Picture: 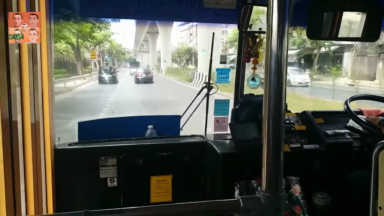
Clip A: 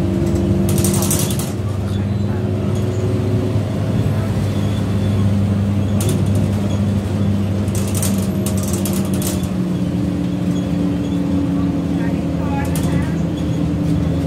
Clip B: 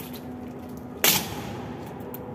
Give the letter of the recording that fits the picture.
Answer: A